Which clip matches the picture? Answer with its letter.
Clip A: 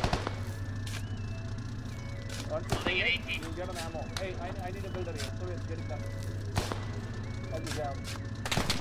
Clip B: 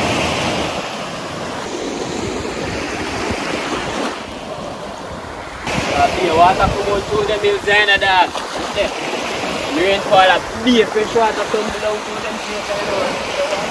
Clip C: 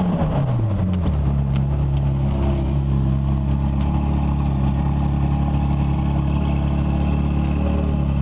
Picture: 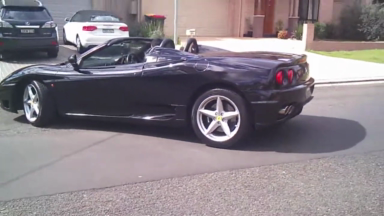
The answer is C